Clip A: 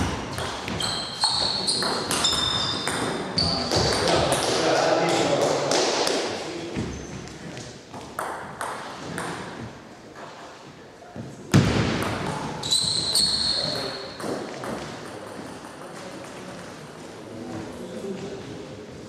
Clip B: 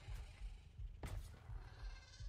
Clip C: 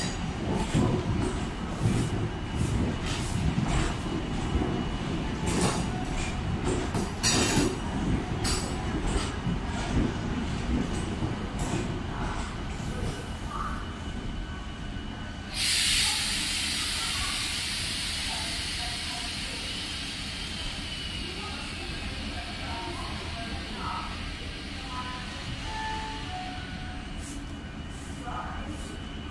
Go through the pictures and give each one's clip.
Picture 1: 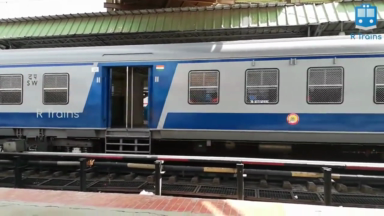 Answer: C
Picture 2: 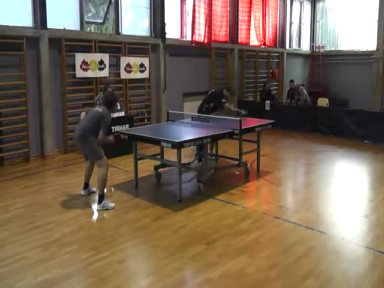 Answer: A